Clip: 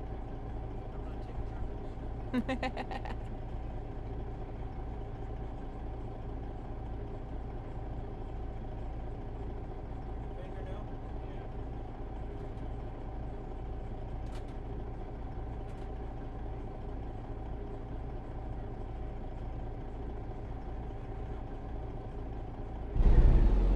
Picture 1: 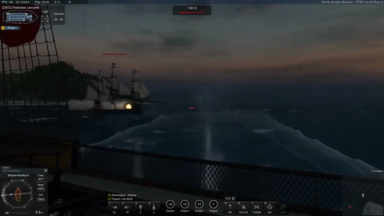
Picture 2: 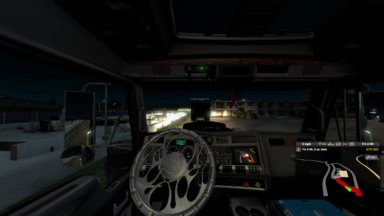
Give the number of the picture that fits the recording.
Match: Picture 2